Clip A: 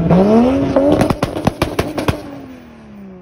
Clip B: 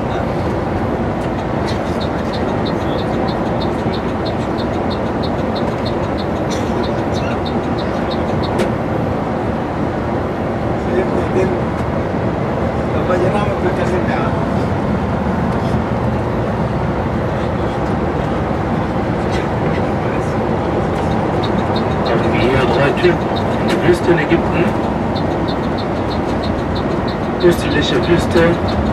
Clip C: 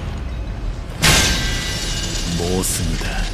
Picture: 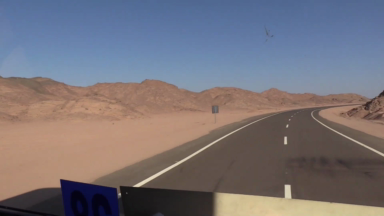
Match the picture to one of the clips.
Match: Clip B